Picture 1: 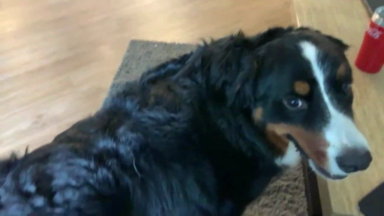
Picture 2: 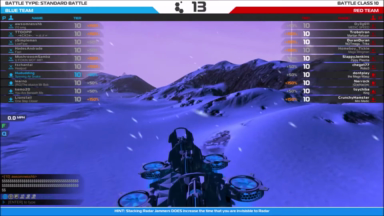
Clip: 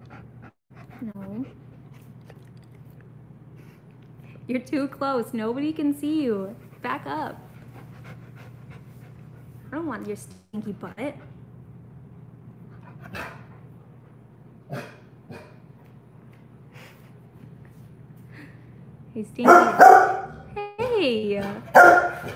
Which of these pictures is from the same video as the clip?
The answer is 1